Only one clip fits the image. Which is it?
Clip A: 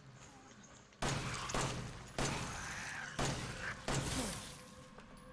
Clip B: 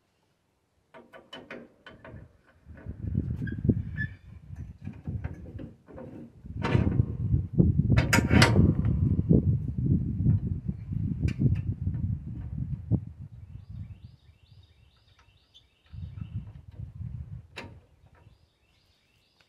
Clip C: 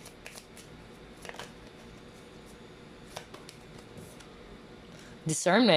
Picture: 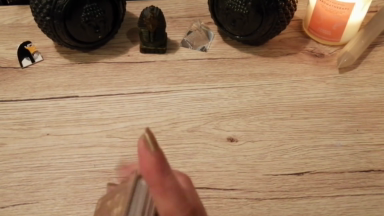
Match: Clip C